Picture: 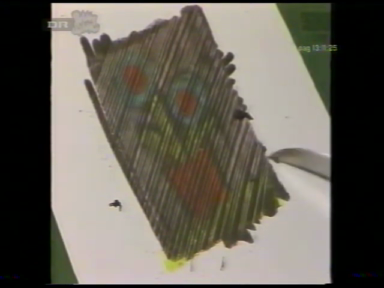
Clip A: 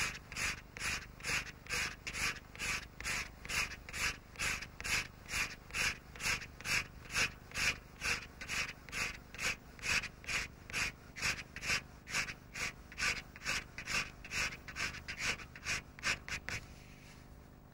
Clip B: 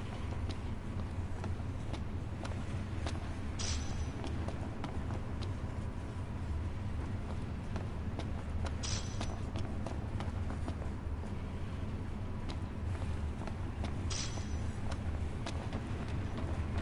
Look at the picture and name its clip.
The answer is A